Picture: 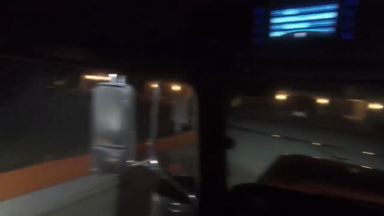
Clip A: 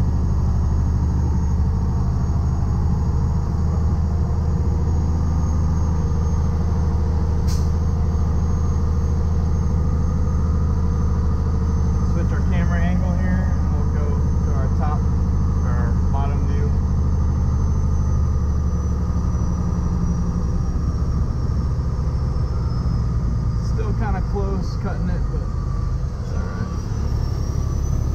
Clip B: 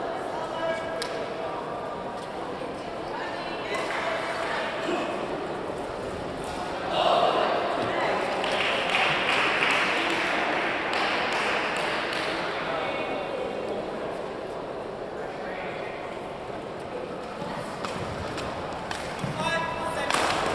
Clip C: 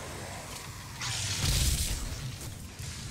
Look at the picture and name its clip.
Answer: A